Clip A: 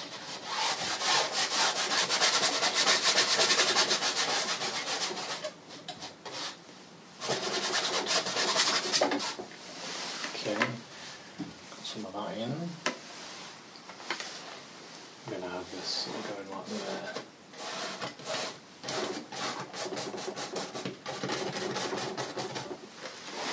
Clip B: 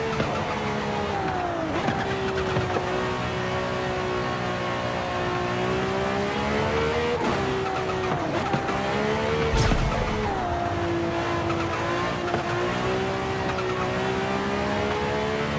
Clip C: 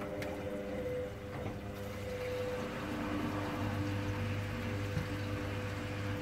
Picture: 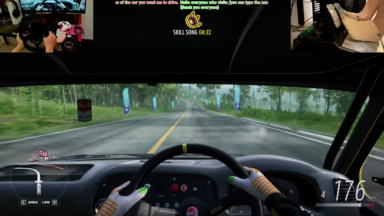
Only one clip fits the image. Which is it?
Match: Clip B